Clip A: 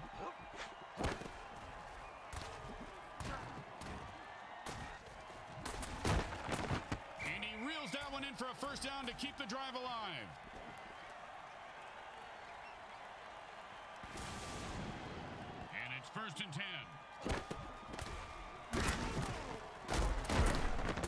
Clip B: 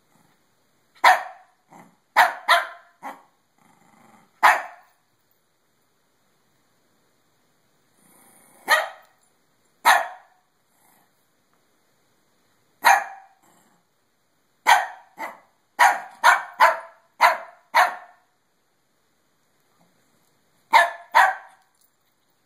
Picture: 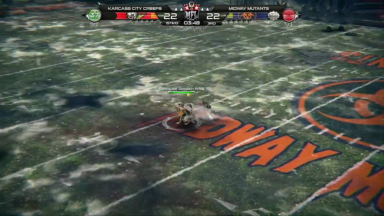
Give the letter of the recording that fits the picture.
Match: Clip A